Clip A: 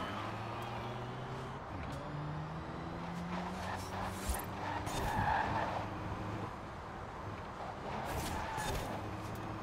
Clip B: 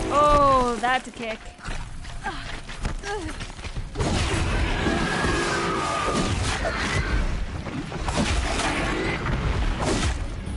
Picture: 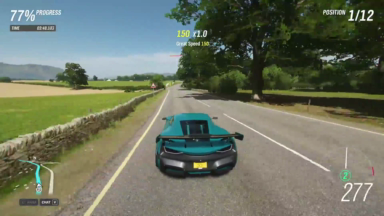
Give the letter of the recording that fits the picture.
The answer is A